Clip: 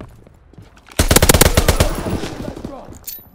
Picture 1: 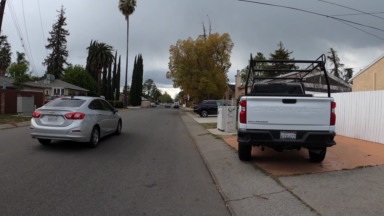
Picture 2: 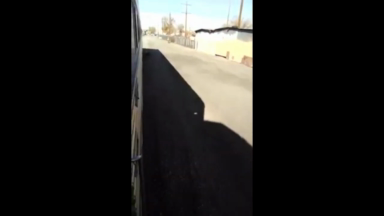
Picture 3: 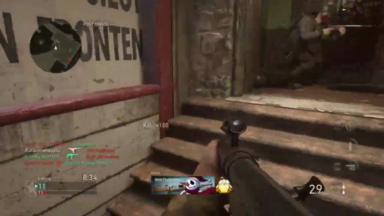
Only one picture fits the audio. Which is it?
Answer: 3